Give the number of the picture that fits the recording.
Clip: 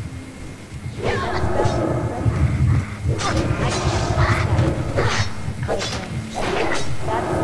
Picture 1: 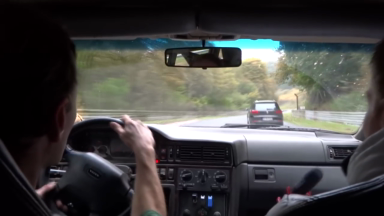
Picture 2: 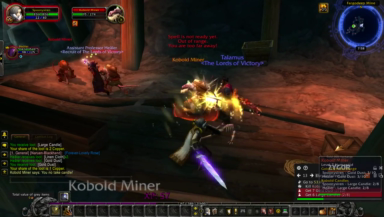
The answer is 2